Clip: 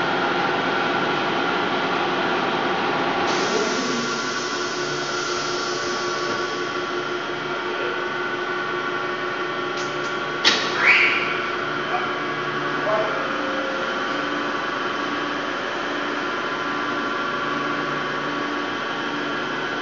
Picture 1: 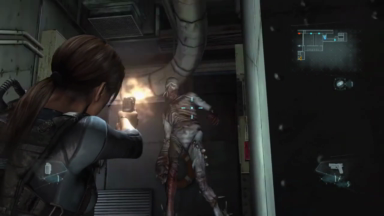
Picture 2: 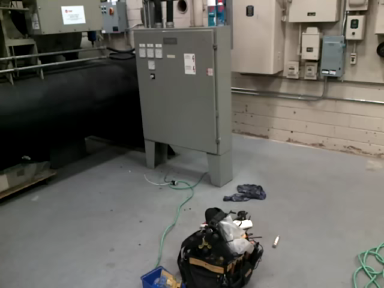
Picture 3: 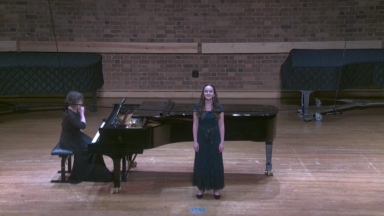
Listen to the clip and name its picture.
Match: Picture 2